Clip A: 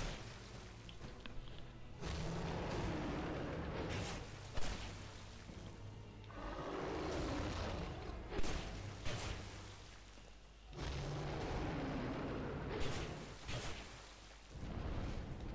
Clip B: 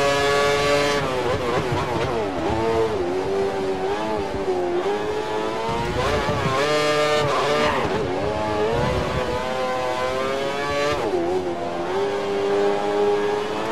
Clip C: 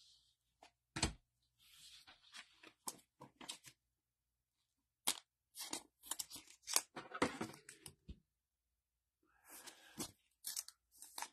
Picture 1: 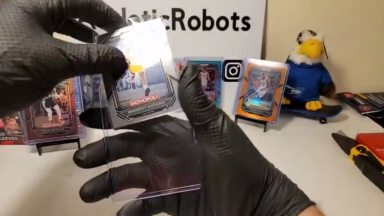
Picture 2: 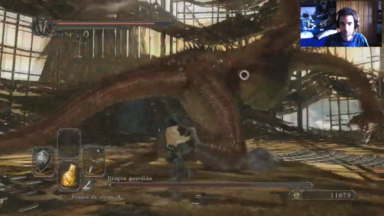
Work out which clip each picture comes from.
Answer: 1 C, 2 A